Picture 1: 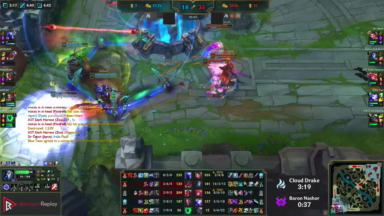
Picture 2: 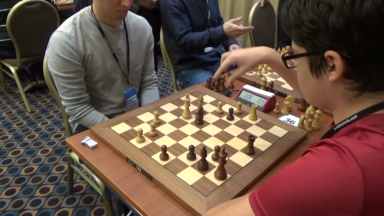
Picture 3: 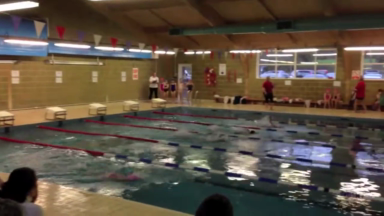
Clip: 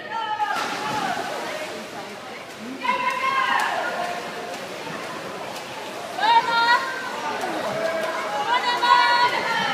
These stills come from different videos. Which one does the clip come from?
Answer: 3